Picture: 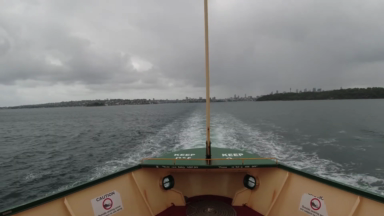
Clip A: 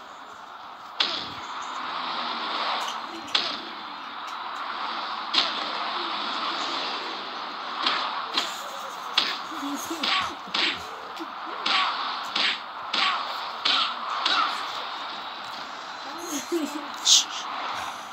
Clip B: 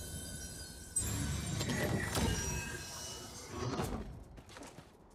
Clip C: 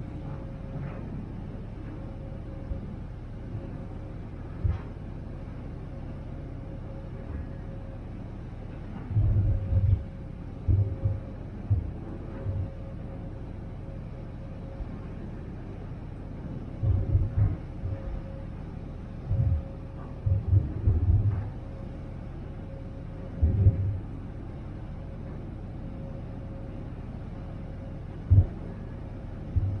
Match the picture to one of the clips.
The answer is C